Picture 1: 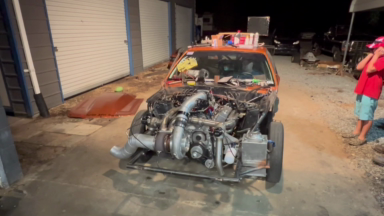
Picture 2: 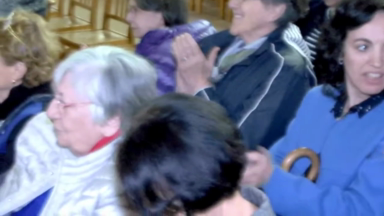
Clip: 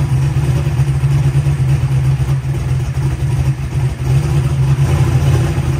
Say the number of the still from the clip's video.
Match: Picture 1